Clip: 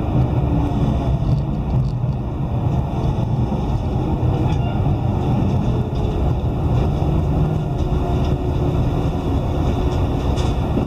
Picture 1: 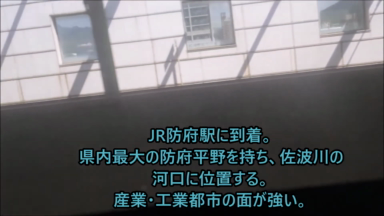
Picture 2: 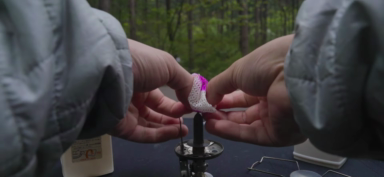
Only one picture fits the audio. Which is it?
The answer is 1